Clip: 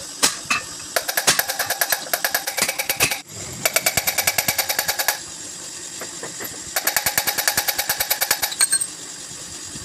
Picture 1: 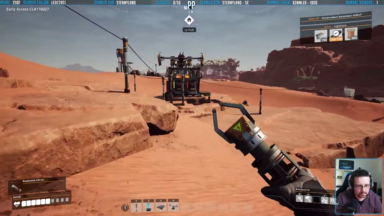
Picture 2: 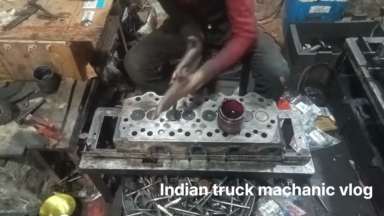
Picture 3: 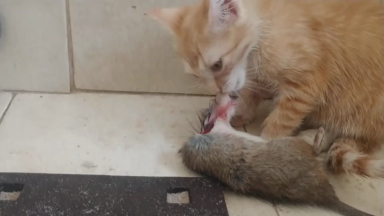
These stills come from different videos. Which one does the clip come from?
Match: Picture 2